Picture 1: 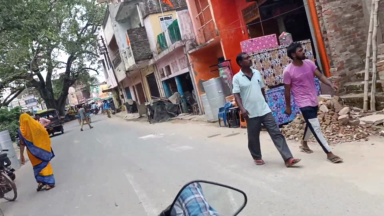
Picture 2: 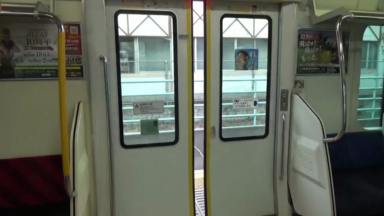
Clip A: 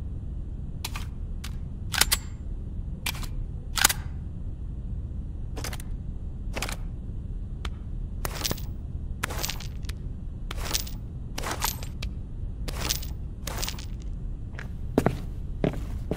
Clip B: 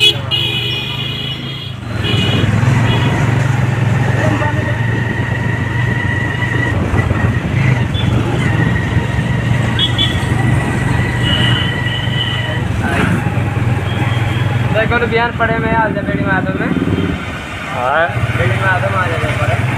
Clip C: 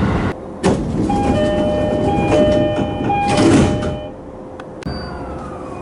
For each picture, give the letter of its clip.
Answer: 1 B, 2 C